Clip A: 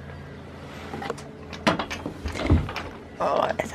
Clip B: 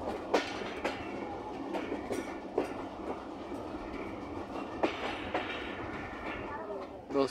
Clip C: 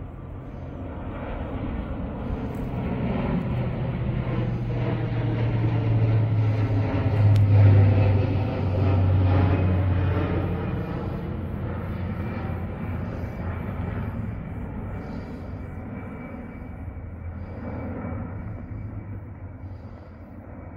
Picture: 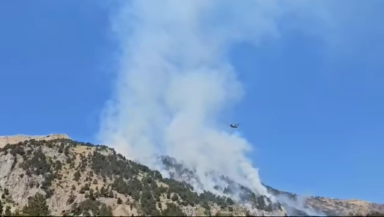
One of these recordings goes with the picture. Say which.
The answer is C